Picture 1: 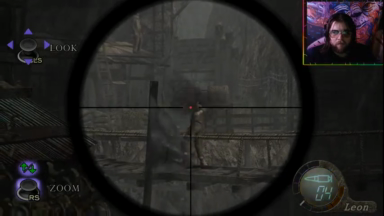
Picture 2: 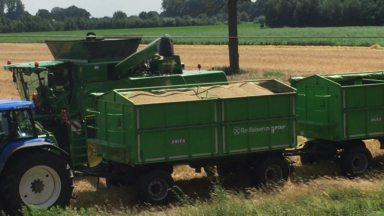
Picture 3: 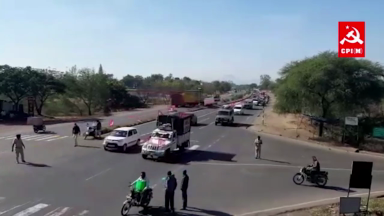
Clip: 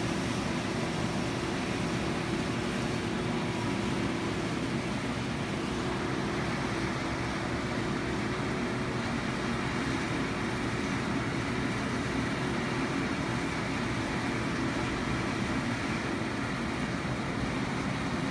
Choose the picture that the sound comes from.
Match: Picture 2